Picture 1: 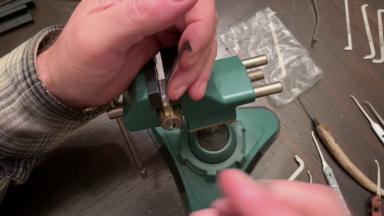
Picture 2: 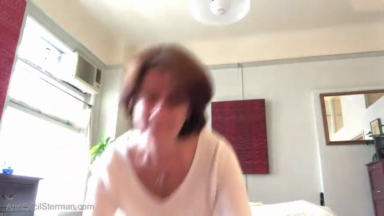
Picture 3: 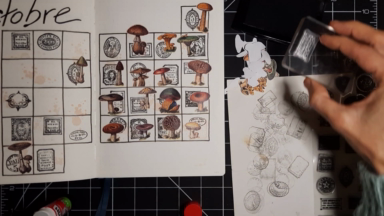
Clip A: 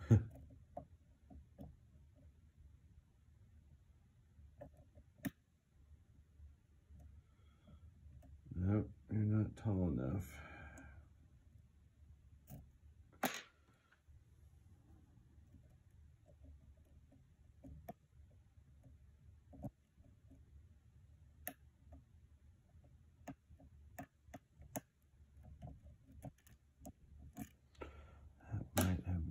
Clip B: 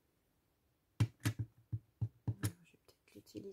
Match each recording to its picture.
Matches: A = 1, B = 3